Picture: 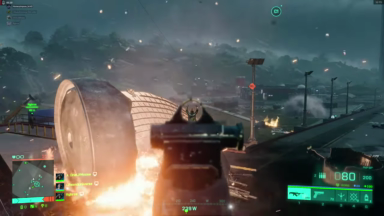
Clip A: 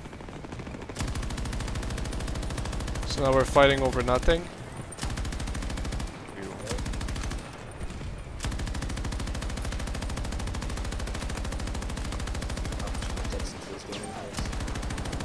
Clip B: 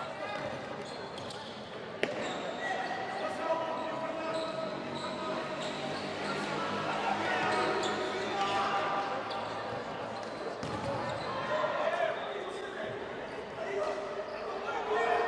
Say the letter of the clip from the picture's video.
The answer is A